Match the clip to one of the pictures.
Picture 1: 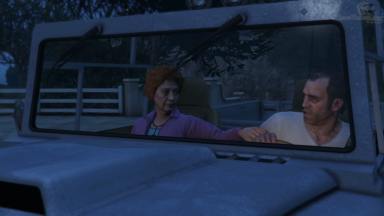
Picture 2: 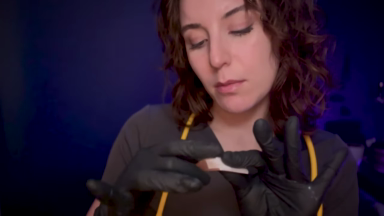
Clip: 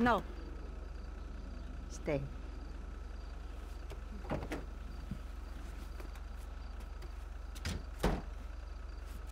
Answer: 1